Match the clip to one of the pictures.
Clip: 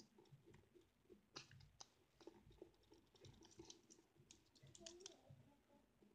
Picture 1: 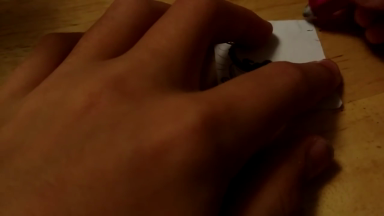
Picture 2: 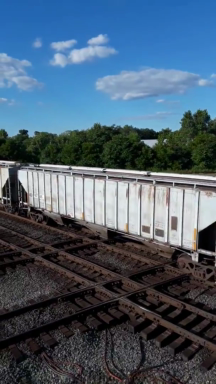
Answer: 1